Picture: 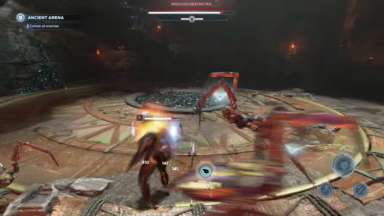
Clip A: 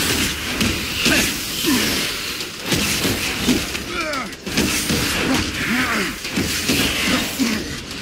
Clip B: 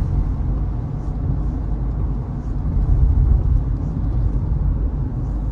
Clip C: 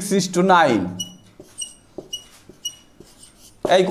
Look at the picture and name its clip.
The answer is A